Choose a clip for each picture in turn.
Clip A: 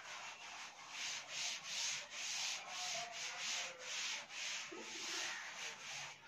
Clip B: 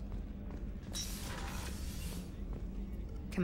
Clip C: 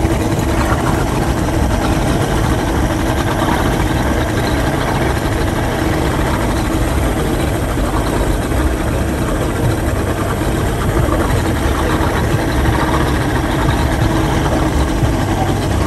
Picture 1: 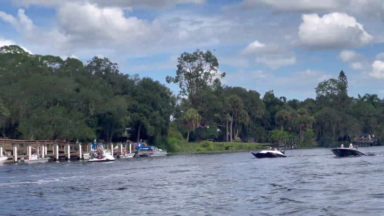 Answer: C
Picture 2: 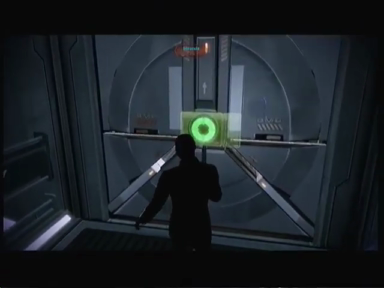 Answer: B